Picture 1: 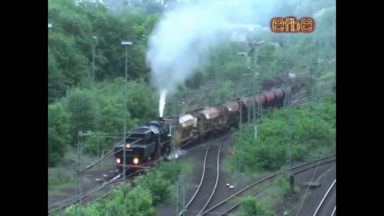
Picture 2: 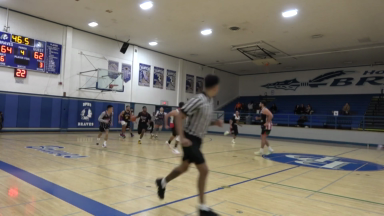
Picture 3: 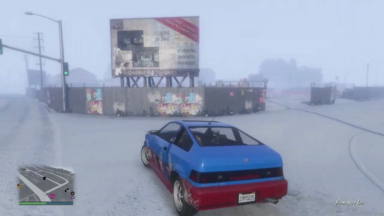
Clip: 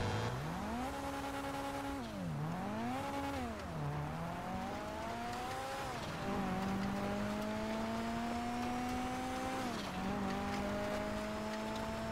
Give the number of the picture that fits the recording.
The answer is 3